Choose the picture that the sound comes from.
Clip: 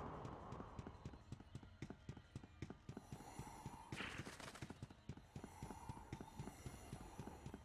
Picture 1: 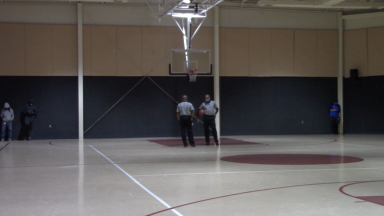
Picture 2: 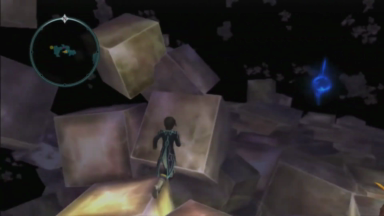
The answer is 2